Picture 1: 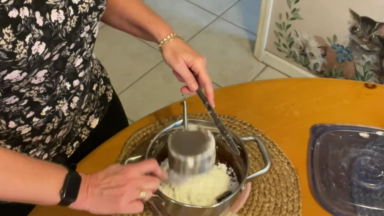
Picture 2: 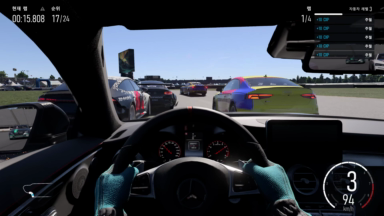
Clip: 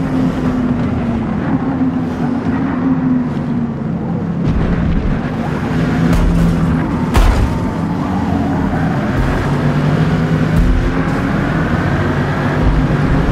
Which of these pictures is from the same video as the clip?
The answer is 2